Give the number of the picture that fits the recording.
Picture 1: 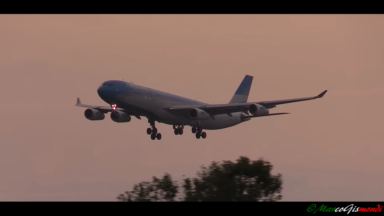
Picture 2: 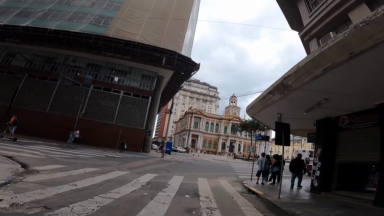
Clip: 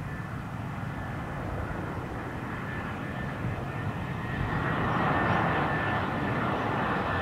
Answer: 1